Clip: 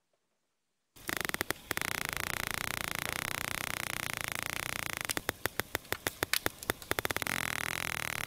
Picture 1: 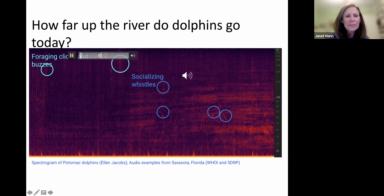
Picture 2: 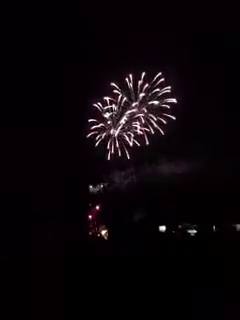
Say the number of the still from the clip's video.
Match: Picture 1